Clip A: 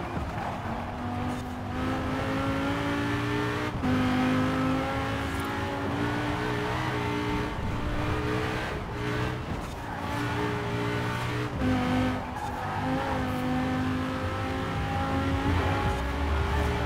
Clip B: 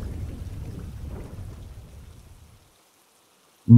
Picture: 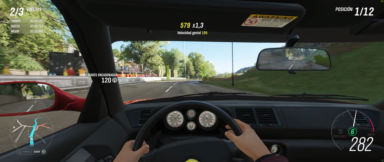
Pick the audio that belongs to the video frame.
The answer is A